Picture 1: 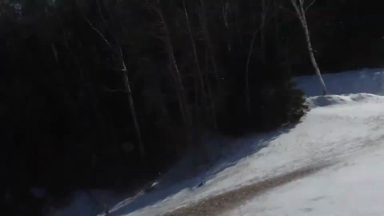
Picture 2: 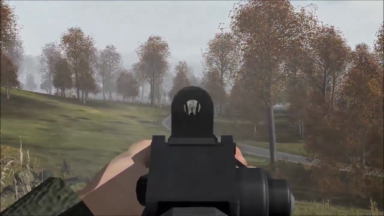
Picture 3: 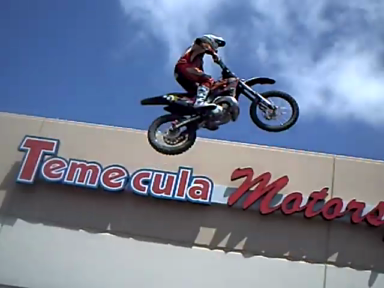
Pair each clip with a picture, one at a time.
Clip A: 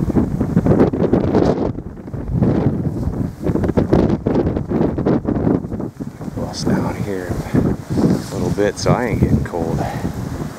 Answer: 1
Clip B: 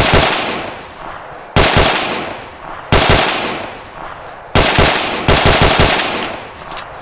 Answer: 2